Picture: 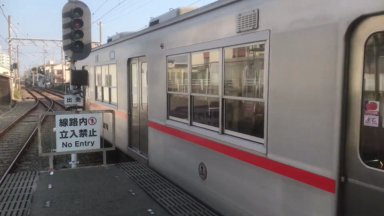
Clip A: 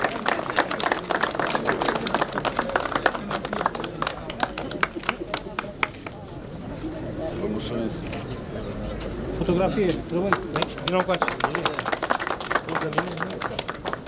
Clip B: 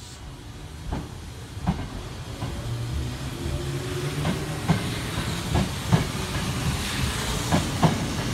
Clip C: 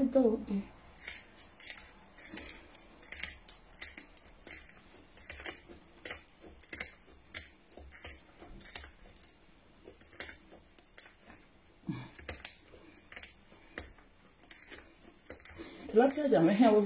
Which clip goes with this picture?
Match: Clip B